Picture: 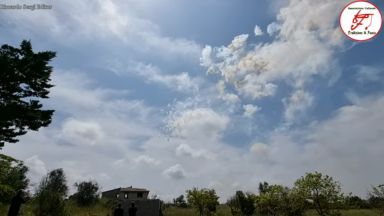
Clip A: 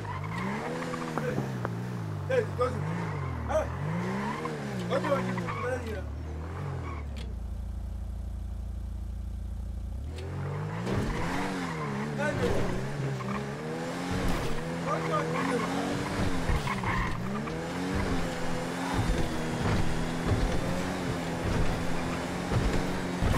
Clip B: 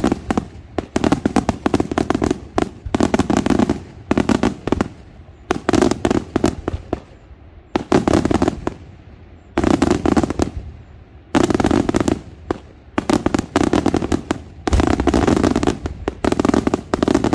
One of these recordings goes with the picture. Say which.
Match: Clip B